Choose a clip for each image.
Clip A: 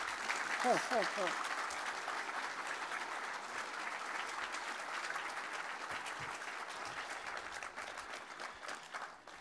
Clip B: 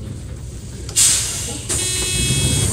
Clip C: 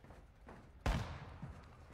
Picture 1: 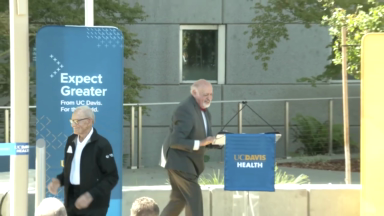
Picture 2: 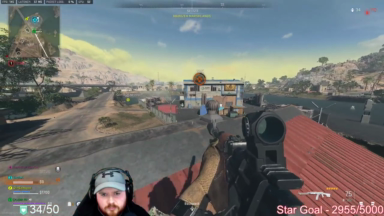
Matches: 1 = A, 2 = C